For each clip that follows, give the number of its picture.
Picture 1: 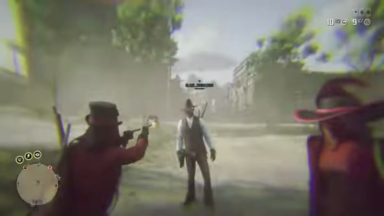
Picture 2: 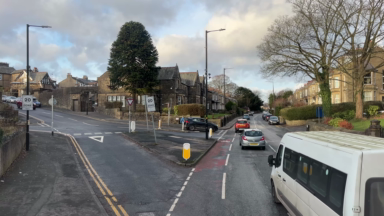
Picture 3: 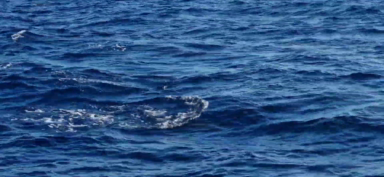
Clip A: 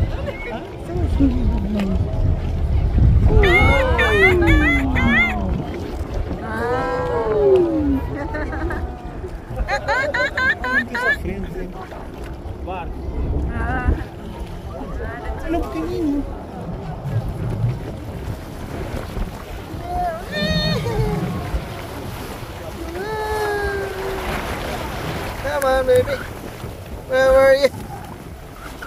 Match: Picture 3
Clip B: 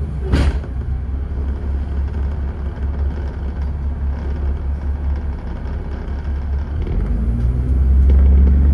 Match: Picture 2